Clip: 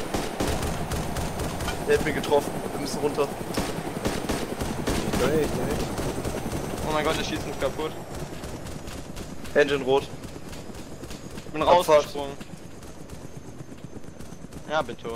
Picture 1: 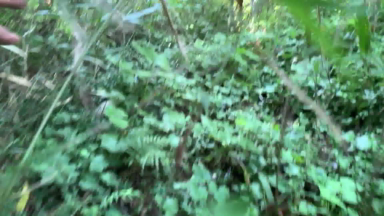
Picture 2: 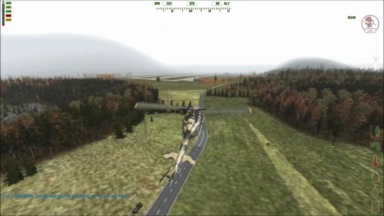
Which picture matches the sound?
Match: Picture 2